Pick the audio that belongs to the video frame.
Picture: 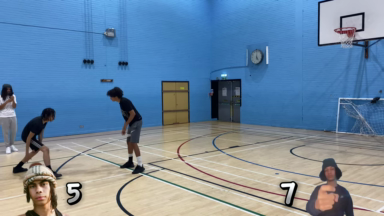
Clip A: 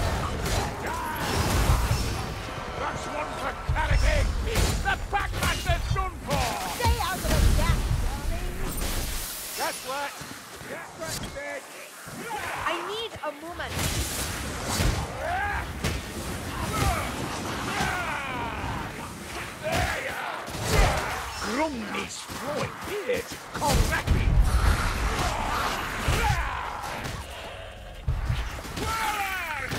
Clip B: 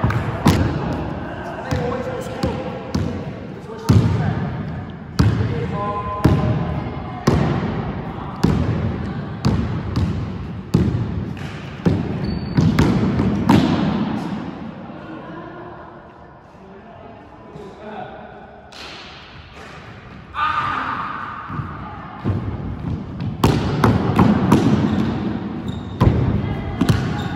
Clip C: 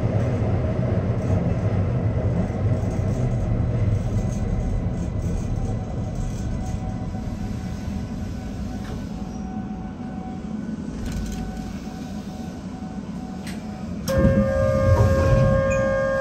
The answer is B